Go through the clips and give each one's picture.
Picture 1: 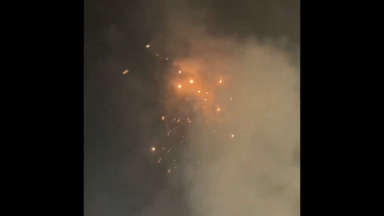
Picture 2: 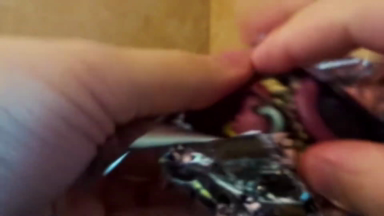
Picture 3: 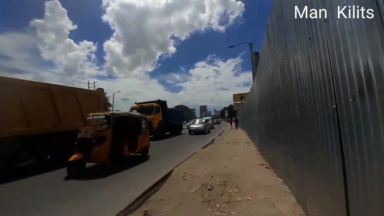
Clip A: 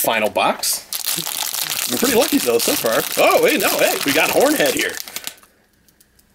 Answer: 2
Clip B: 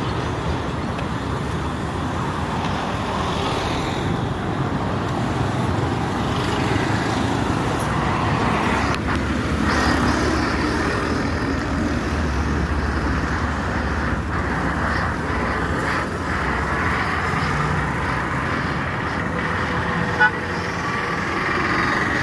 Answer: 3